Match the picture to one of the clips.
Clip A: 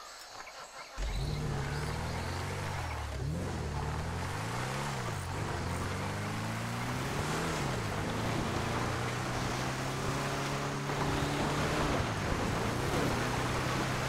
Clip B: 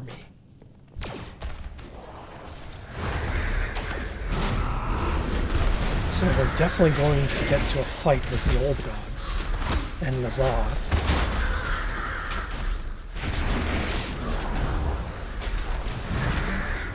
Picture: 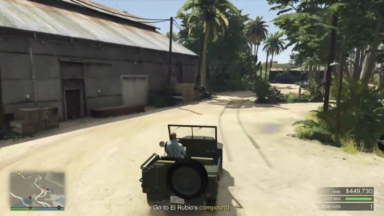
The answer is A